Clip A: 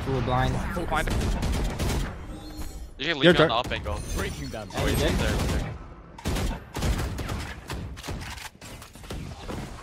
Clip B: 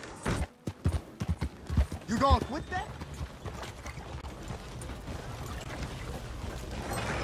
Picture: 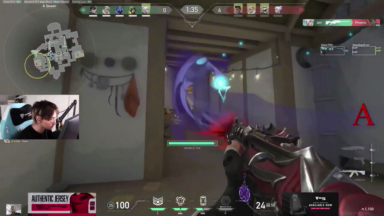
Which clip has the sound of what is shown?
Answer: A